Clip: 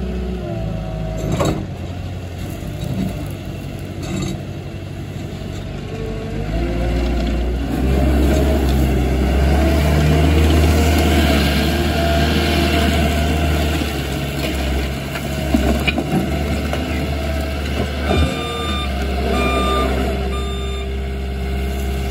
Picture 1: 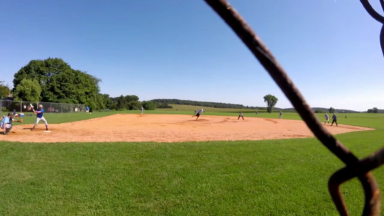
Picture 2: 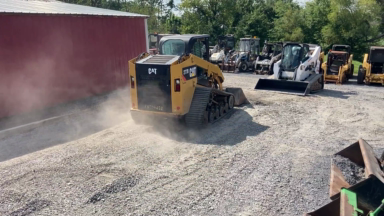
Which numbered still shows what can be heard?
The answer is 2